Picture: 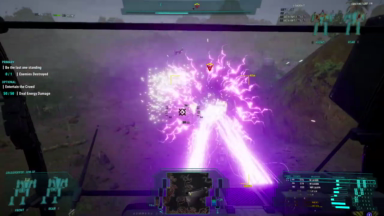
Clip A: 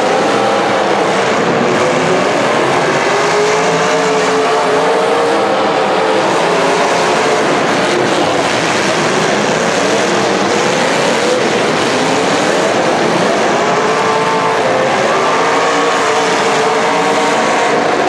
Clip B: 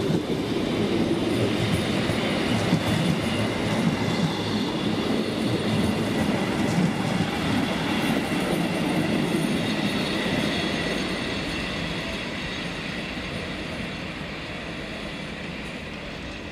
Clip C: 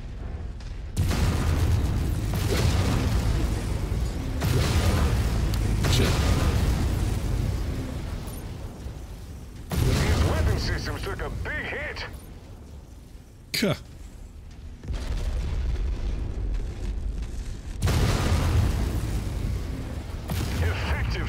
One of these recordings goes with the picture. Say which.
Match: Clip C